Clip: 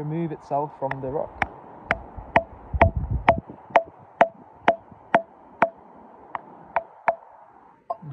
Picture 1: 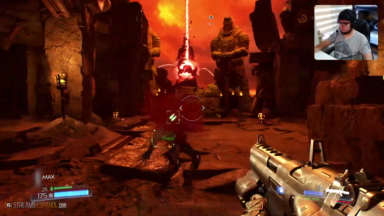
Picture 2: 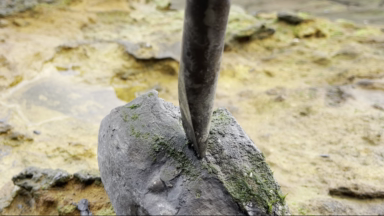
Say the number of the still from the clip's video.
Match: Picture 2